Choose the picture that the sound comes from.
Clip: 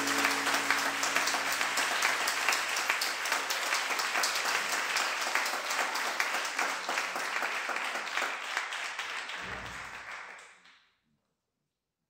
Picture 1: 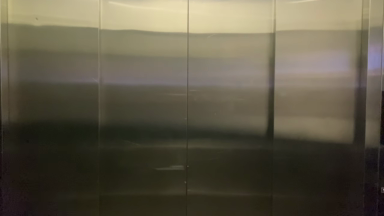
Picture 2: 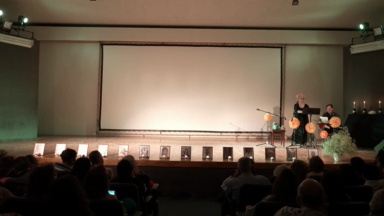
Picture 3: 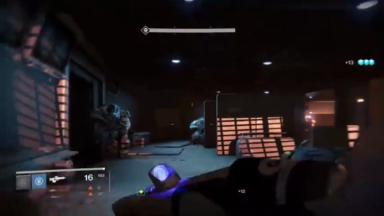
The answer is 2